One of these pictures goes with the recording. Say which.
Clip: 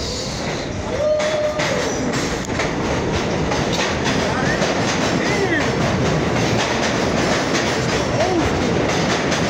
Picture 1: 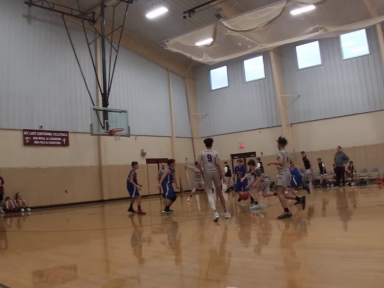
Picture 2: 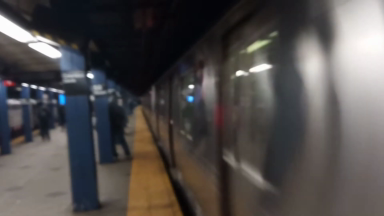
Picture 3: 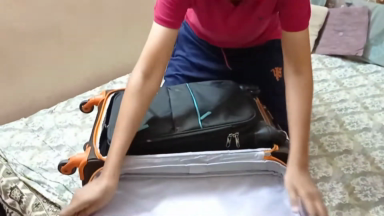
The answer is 2